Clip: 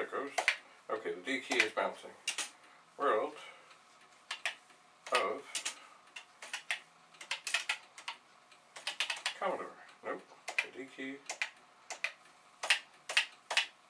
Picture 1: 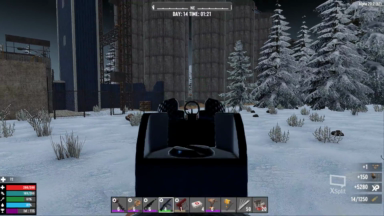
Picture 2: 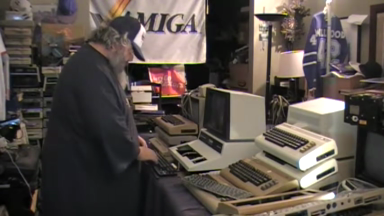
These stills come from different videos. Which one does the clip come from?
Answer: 2